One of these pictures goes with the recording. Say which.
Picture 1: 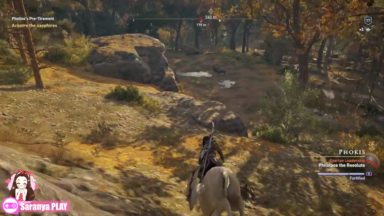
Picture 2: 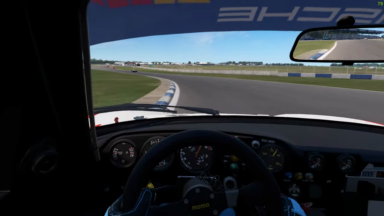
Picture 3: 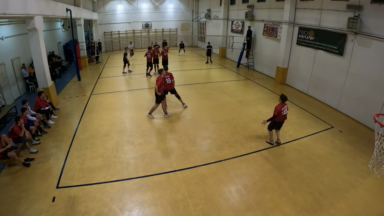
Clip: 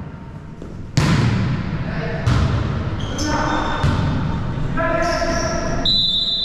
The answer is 3